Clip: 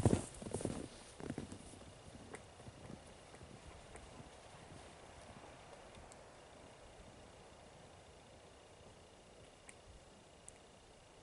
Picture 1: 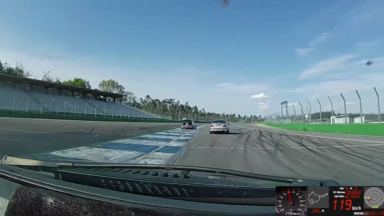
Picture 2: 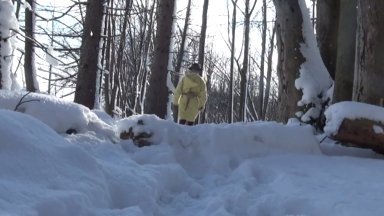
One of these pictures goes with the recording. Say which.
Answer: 2